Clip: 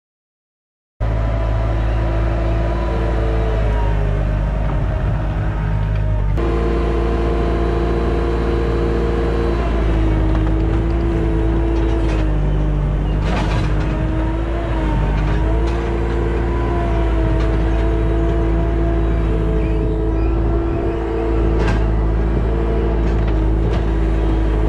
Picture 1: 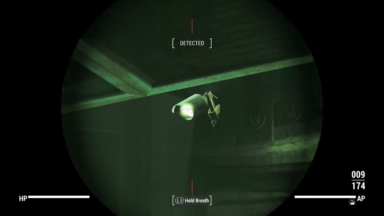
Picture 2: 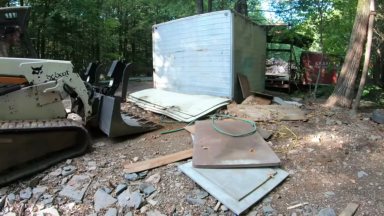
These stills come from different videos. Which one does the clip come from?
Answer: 2